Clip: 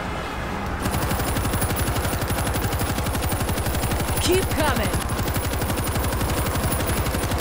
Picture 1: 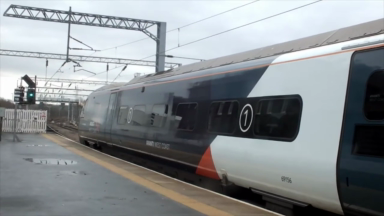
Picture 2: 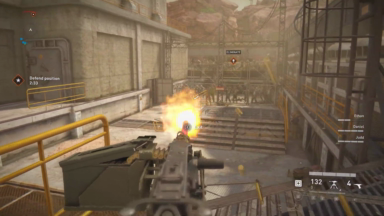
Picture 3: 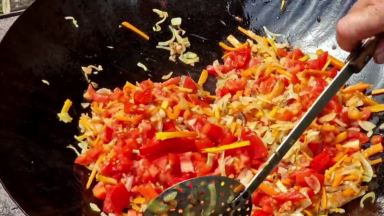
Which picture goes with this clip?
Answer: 2